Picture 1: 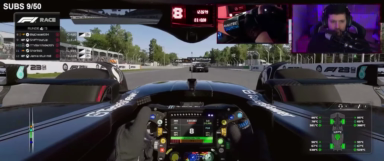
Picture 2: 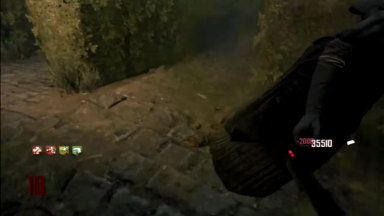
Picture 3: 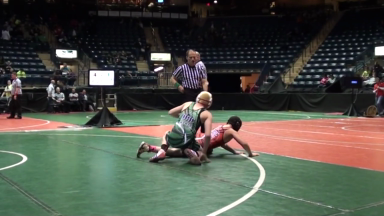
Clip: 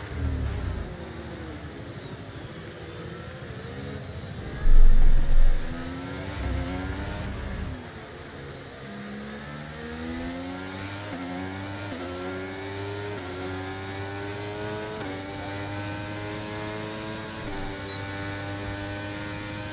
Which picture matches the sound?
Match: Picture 1